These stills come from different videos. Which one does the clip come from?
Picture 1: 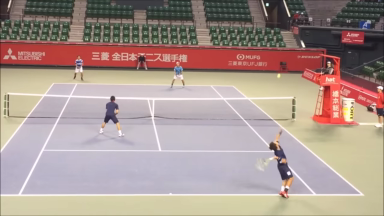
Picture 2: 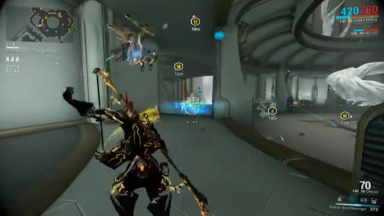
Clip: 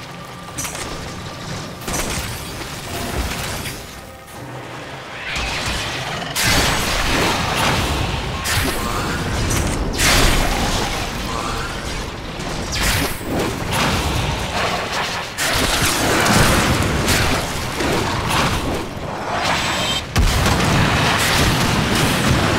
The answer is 2